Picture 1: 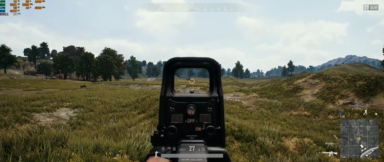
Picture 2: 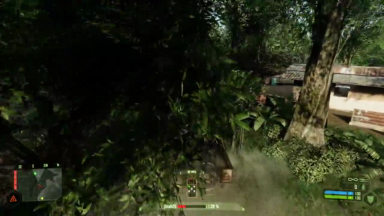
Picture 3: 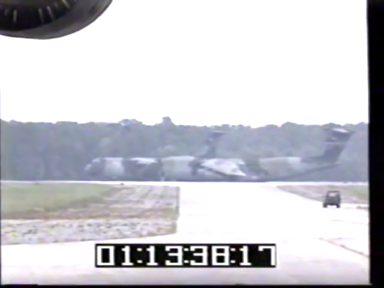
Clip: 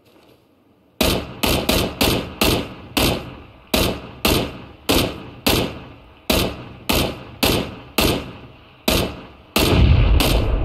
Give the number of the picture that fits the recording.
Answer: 1